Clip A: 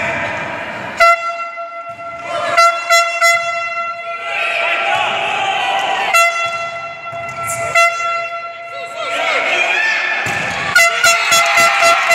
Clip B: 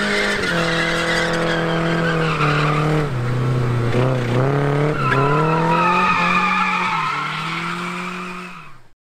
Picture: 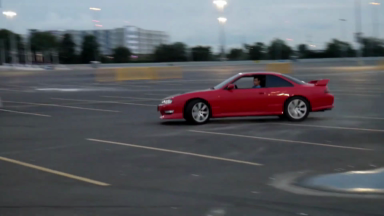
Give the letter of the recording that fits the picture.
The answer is B